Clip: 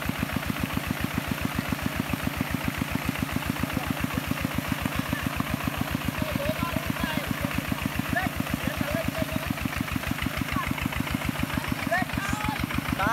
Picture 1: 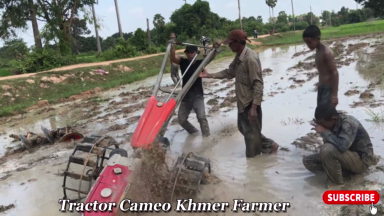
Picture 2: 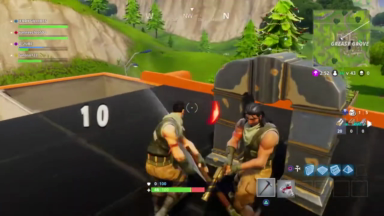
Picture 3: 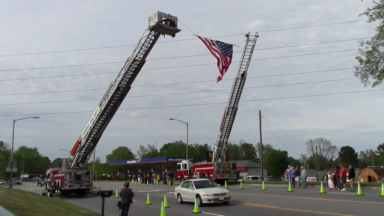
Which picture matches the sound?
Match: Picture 1